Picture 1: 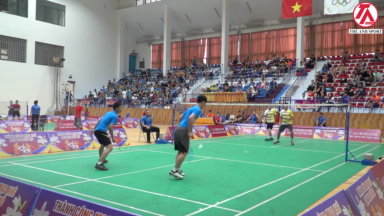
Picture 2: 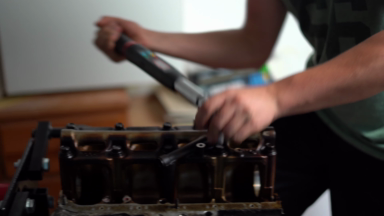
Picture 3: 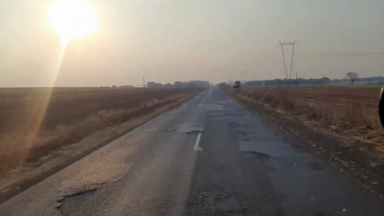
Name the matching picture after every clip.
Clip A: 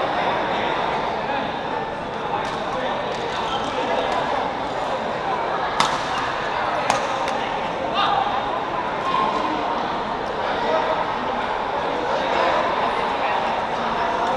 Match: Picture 1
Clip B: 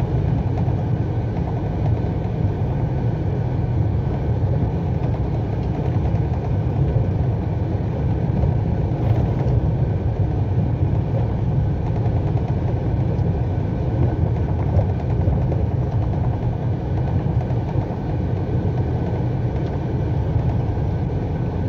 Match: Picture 3